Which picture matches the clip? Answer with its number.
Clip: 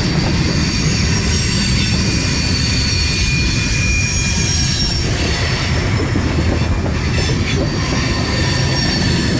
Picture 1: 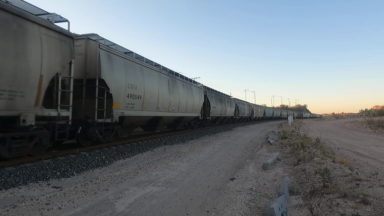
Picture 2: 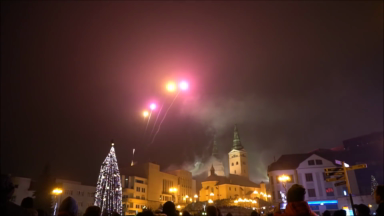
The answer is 1